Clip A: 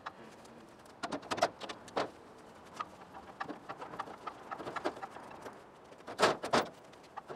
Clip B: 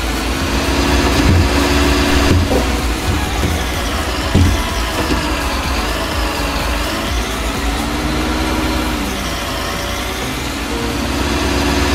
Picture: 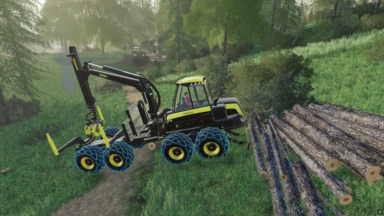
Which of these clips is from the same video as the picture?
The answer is B